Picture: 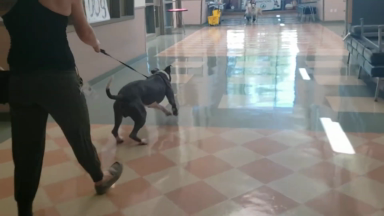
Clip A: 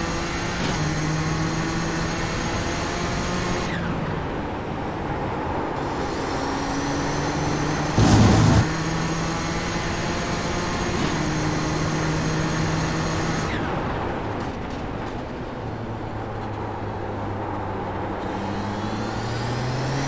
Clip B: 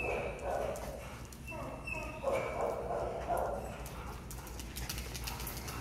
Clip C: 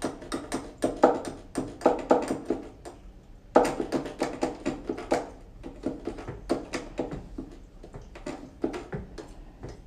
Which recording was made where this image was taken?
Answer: B